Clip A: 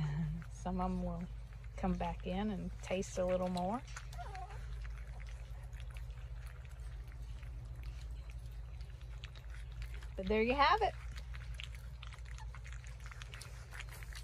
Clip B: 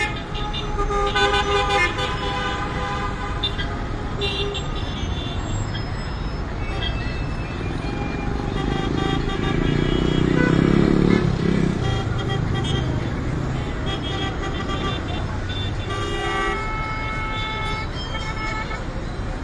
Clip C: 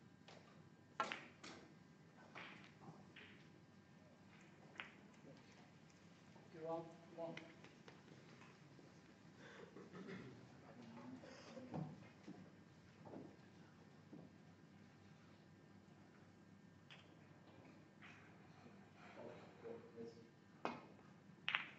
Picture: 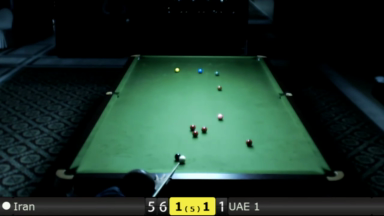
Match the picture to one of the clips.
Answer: C